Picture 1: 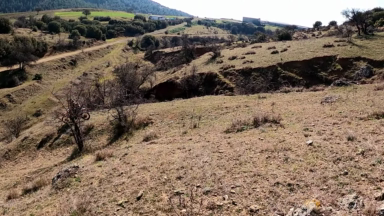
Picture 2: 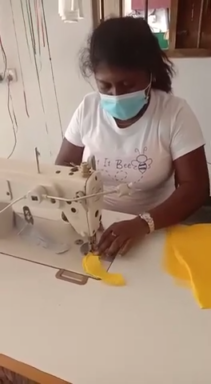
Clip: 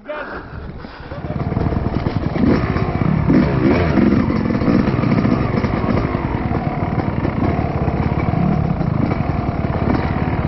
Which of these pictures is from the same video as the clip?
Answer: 1